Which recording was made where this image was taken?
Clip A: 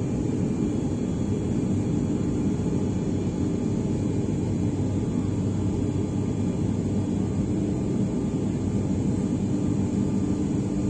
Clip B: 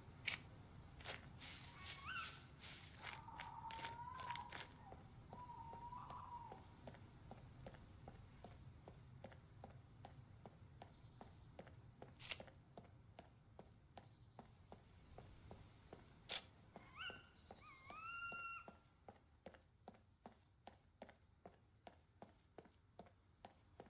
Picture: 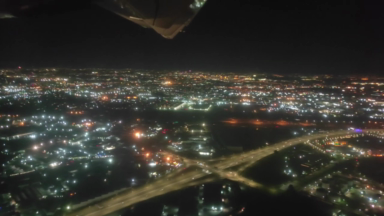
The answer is A